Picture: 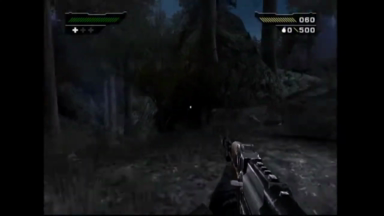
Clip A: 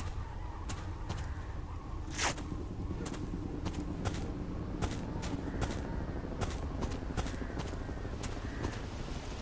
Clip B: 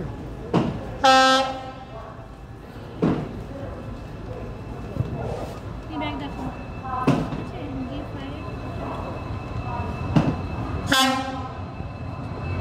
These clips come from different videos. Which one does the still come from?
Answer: A